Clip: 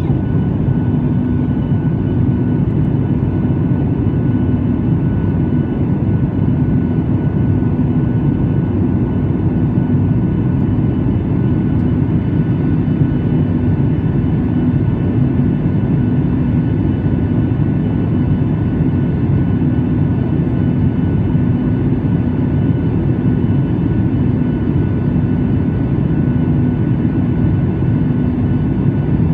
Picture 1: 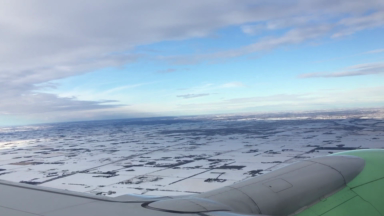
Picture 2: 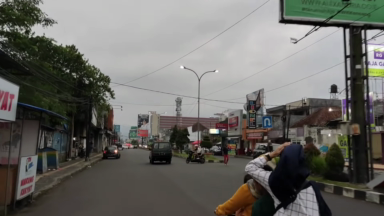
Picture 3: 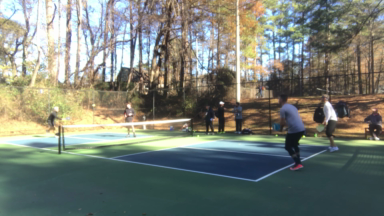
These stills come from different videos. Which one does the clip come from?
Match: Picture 1